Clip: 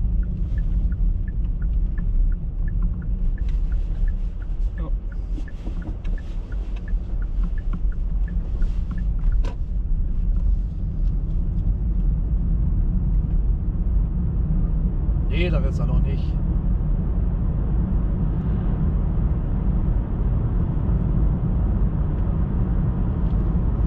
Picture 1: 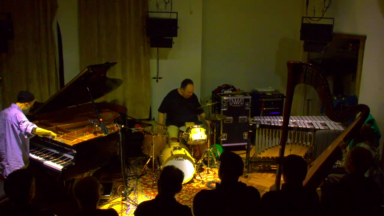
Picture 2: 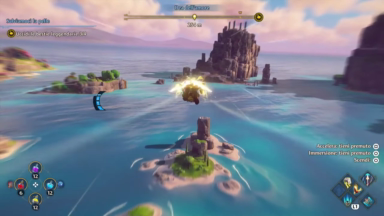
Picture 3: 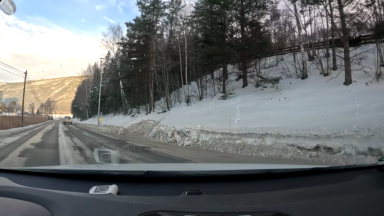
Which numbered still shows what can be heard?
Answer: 3